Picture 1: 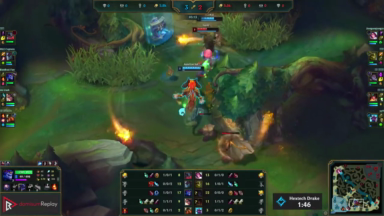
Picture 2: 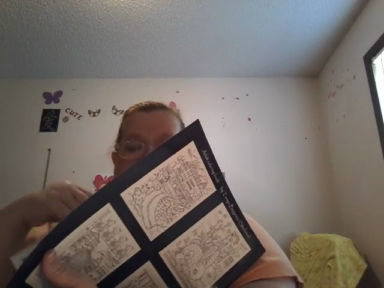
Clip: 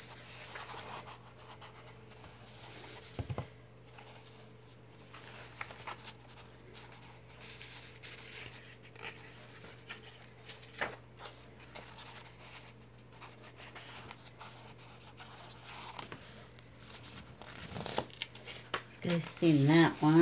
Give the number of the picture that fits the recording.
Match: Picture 2